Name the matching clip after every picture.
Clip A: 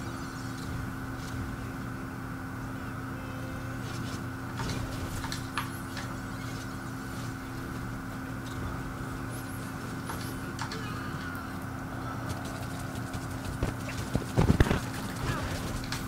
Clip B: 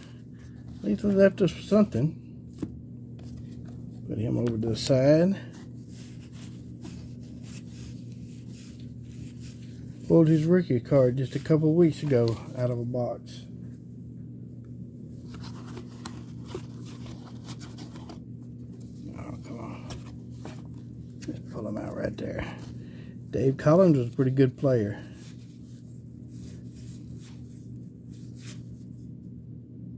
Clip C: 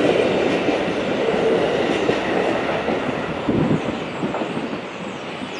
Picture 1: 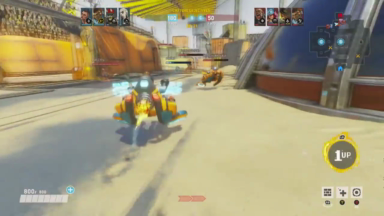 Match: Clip A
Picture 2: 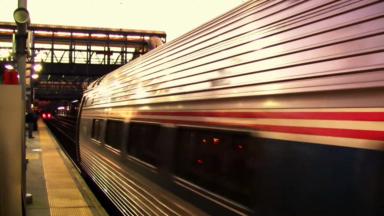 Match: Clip C